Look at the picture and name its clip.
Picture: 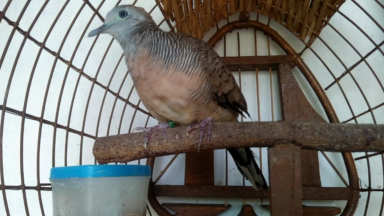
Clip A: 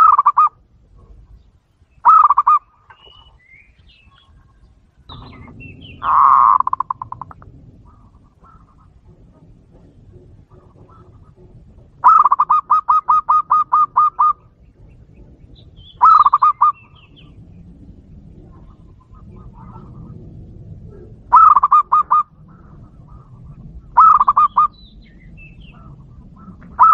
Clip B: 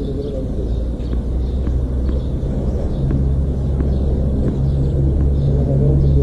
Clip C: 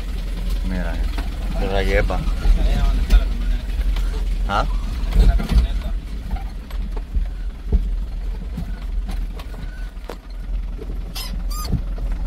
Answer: A